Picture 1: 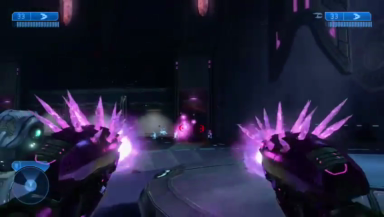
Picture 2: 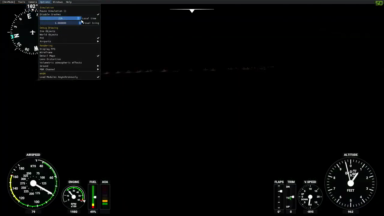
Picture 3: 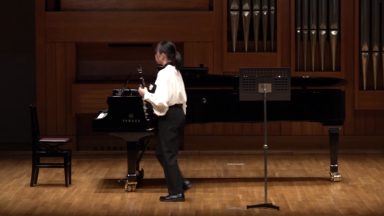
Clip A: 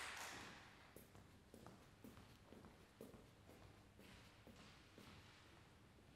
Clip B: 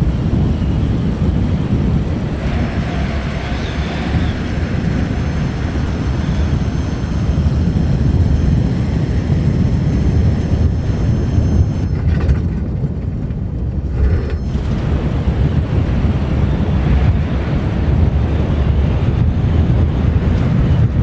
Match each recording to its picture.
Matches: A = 3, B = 2